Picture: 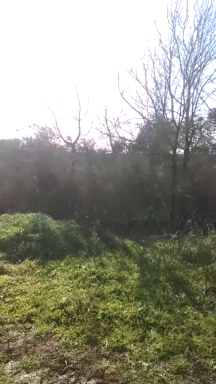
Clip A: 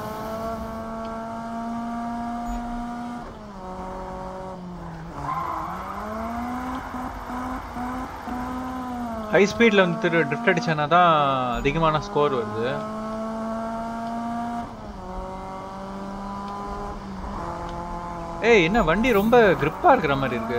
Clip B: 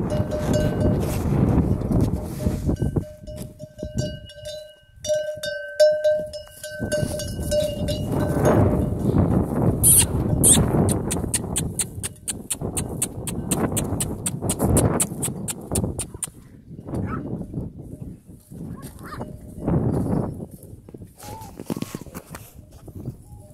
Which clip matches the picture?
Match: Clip B